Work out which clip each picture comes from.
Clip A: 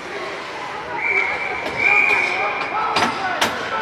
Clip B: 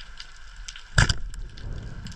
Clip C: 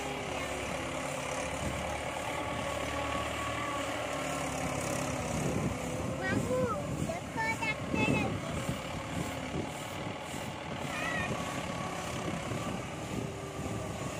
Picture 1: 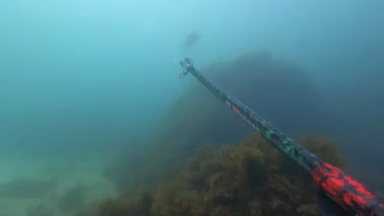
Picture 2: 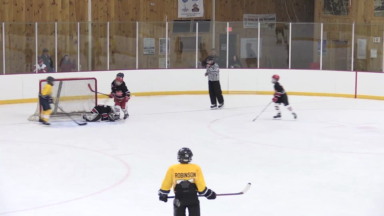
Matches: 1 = B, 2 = A